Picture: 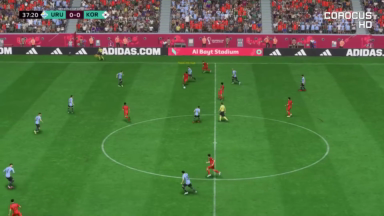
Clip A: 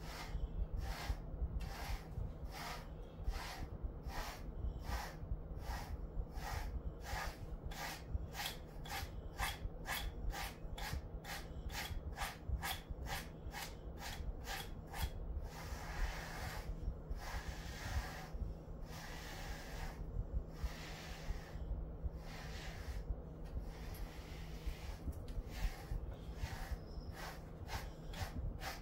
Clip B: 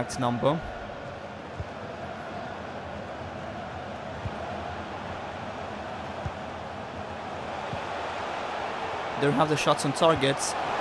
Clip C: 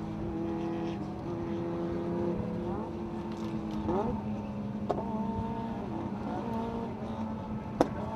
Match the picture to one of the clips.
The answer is B